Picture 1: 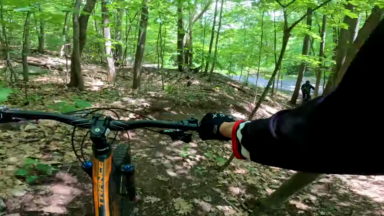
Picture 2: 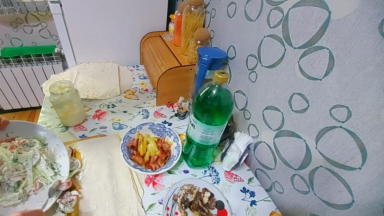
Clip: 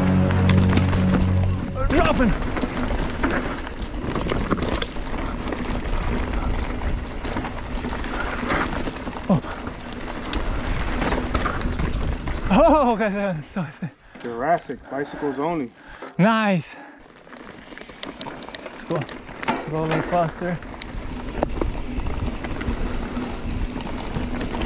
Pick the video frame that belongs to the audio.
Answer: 1